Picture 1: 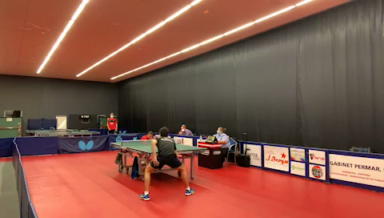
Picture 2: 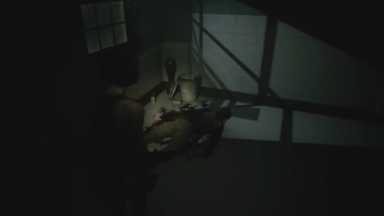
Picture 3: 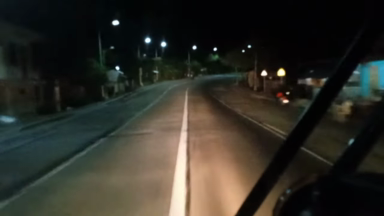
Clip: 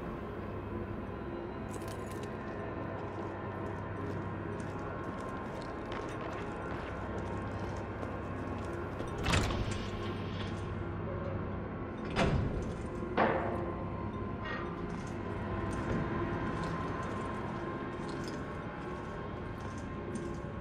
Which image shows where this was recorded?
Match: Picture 2